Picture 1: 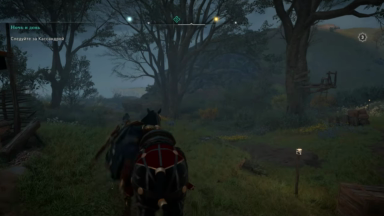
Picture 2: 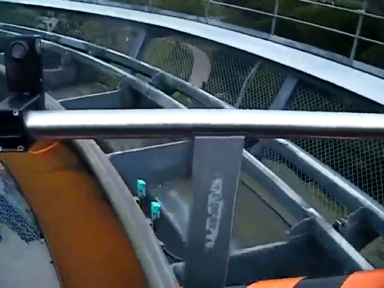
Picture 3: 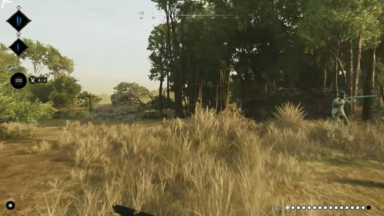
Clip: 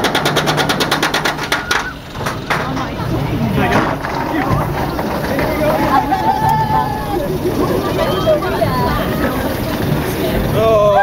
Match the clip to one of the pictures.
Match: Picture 2